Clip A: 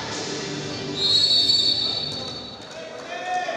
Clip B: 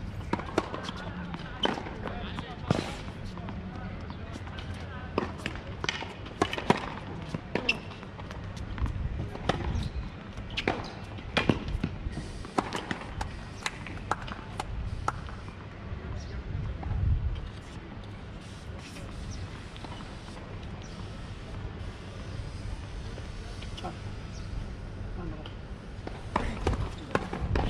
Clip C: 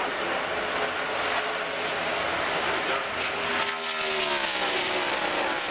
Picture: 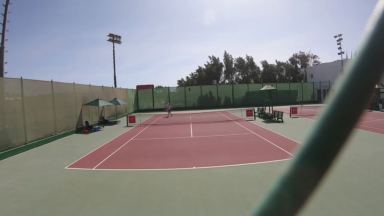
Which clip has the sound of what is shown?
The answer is B